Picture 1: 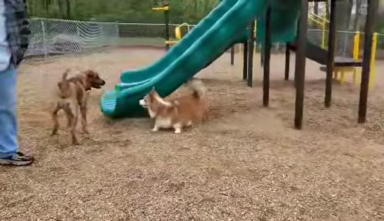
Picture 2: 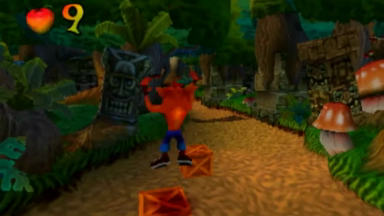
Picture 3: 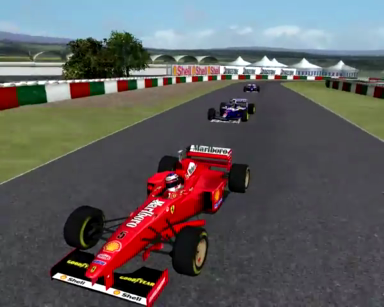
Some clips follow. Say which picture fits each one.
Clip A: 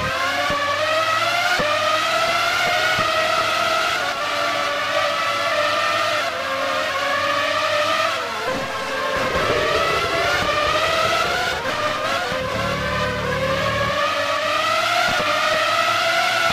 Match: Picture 3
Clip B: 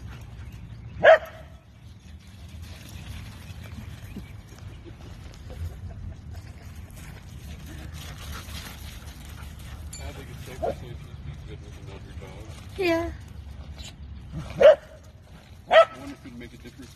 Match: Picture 1